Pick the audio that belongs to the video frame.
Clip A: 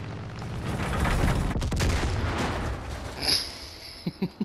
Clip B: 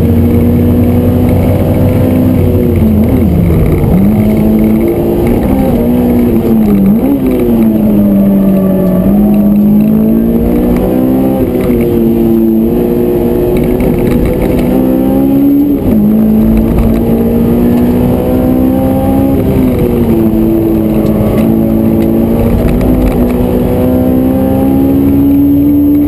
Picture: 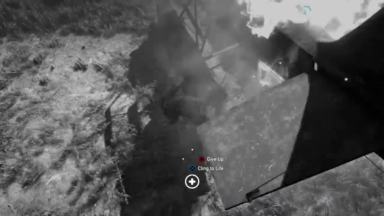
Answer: A